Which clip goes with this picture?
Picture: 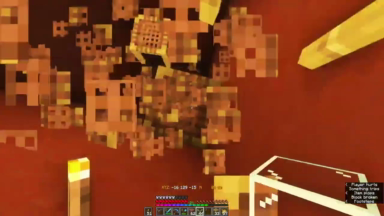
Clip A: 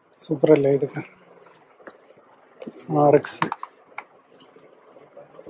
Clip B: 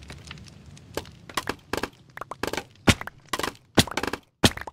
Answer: B